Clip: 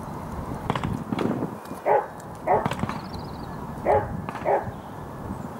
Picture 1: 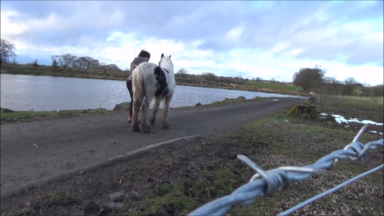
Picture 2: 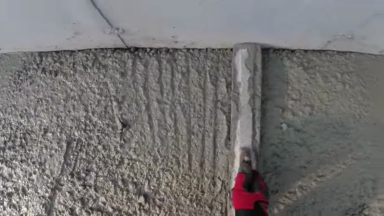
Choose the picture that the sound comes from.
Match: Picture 1